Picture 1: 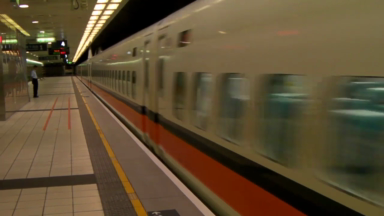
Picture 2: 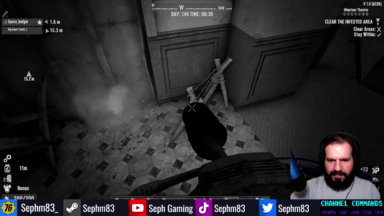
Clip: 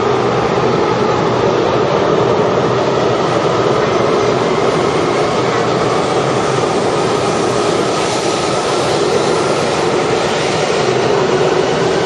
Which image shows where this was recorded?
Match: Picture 1